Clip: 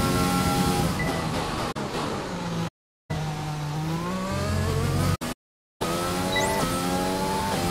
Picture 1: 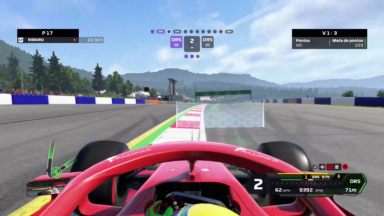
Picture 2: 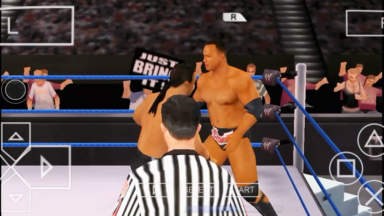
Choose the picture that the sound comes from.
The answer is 1